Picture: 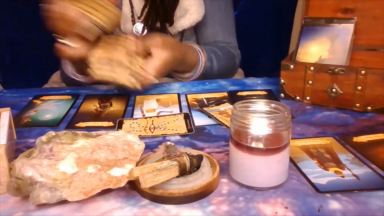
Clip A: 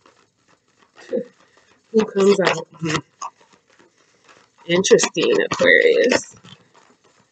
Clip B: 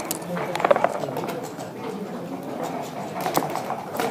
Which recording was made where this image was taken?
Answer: A